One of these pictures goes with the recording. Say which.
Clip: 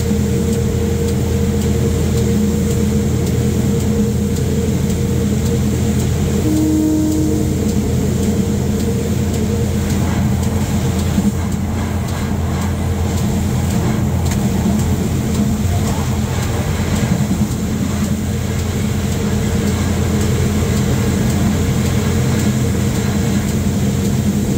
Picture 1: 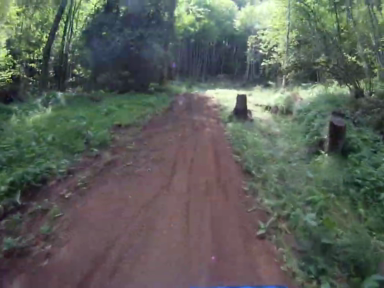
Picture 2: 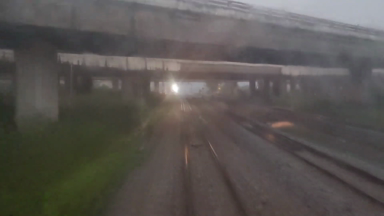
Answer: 2